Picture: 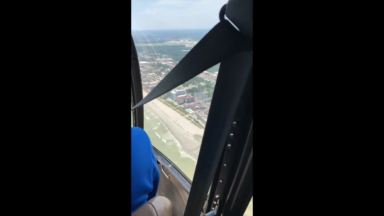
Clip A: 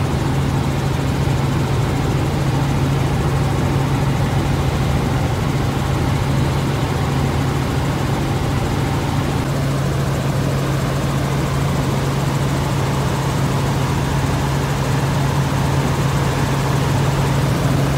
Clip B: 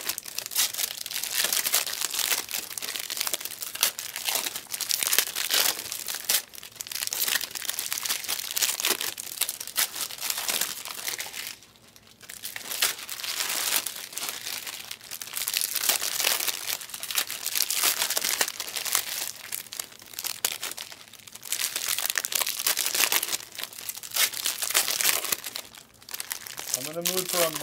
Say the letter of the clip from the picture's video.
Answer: A